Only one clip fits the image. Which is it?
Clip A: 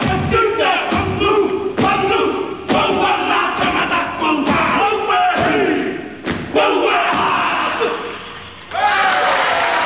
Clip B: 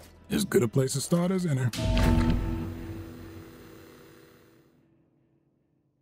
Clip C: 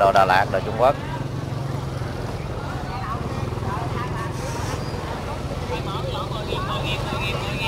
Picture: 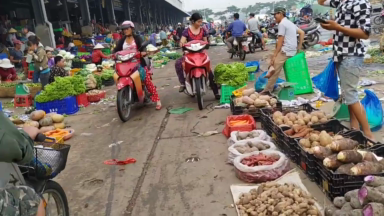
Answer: C